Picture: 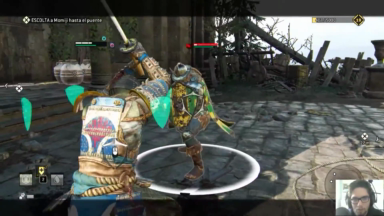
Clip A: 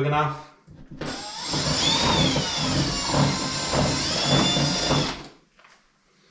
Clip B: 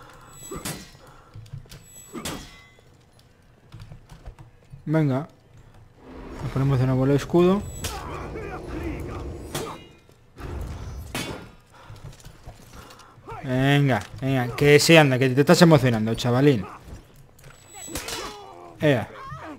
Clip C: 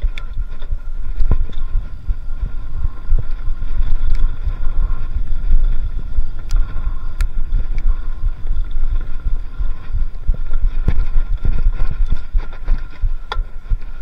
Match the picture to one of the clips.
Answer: B